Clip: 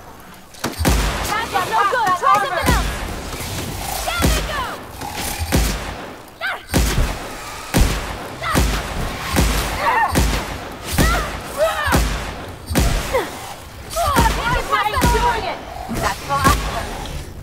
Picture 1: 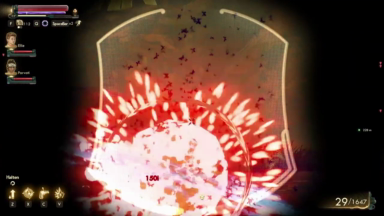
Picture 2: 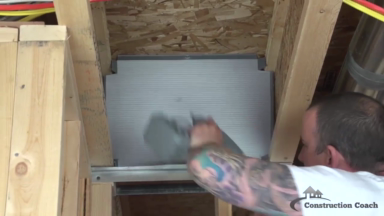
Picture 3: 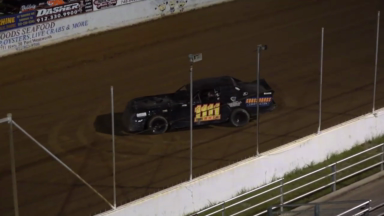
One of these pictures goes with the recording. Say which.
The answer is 1